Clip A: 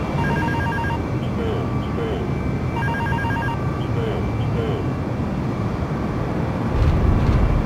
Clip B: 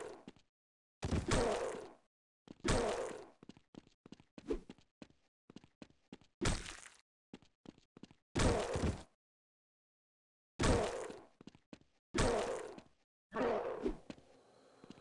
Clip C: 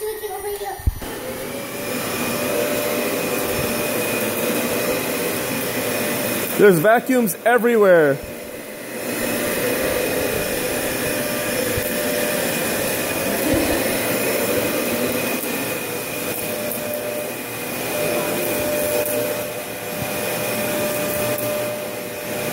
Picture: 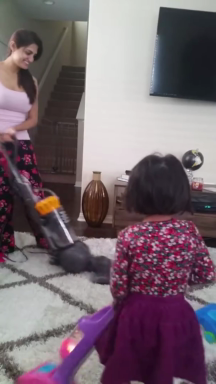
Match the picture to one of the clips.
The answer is C